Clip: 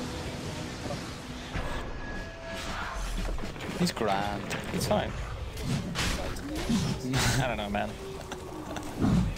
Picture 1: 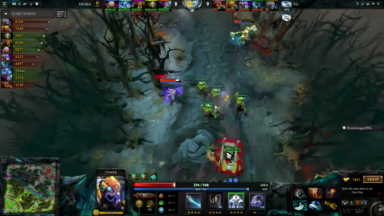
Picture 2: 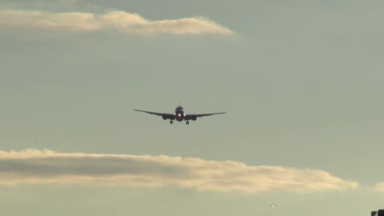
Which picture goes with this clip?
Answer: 1